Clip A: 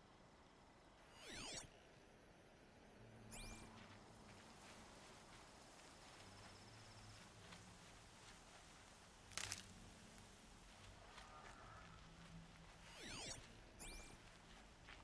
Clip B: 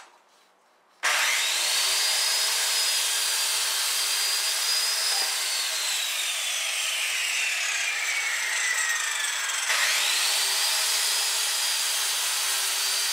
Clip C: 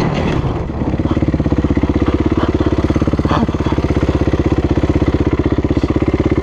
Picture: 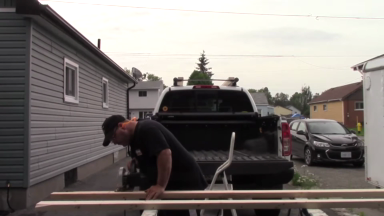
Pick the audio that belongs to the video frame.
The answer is B